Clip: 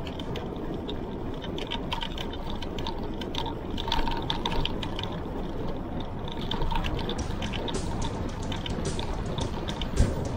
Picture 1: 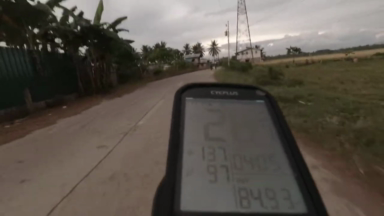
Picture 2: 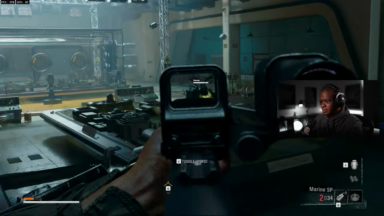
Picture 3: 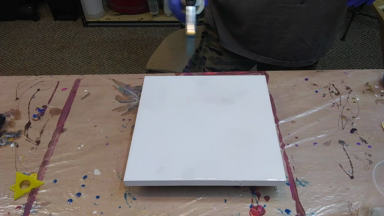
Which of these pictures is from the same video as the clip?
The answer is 1